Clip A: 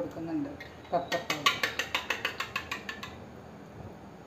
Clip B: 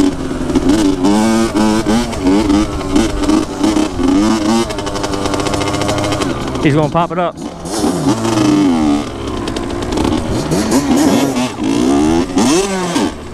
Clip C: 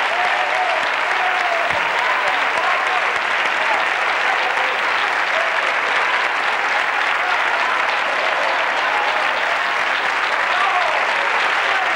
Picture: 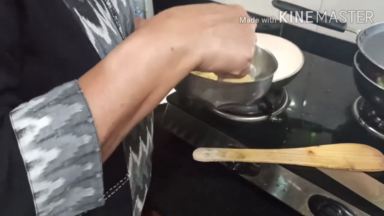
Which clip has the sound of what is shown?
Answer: A